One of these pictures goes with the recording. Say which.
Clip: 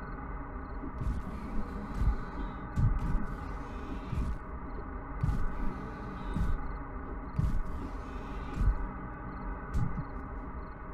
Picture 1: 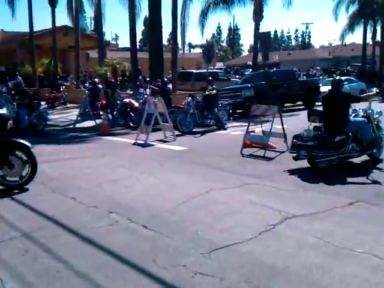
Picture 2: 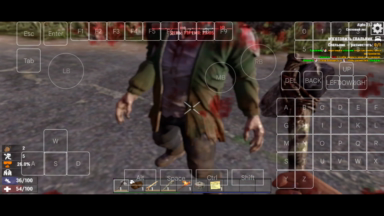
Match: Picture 2